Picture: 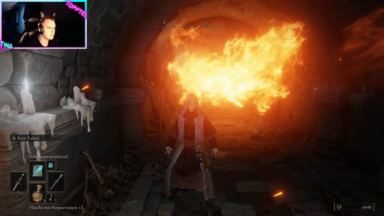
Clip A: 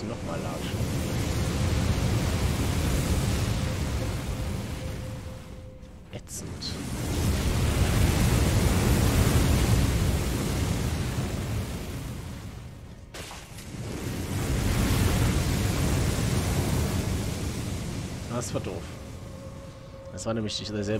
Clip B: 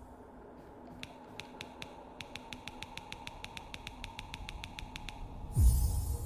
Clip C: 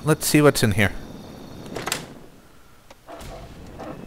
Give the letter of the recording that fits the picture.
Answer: A